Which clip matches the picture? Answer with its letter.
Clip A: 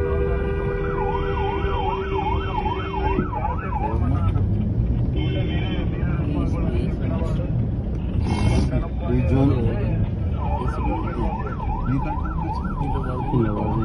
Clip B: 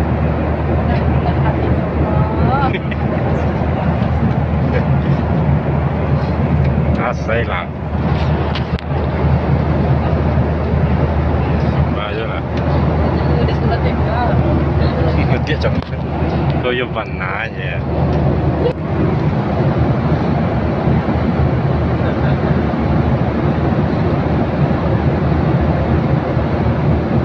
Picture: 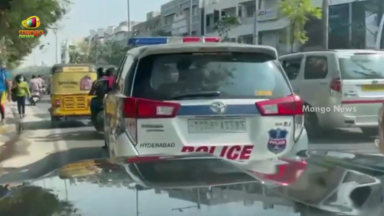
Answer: A